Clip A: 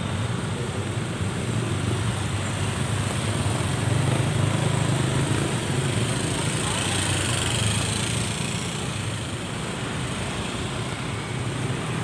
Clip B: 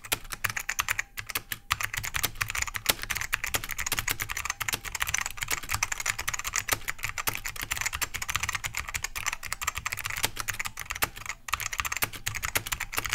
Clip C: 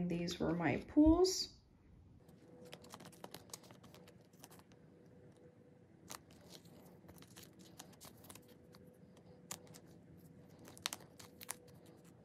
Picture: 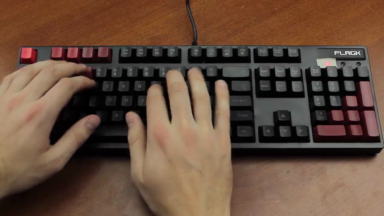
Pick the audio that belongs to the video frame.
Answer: B